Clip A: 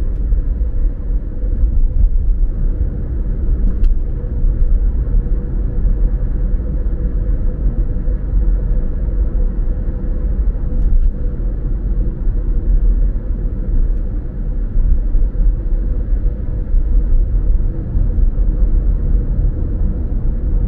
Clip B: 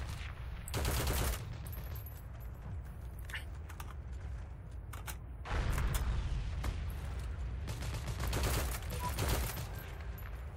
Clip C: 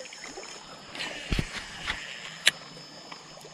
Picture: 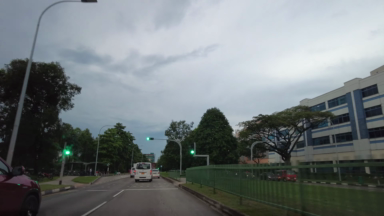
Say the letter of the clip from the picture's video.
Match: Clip A